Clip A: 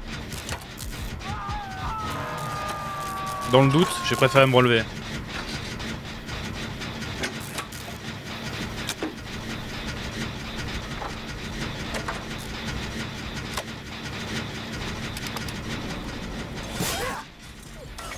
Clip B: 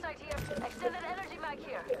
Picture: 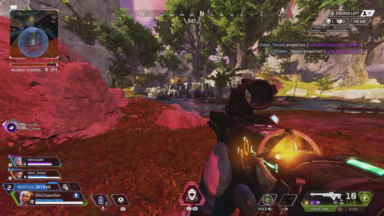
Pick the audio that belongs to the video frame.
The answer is B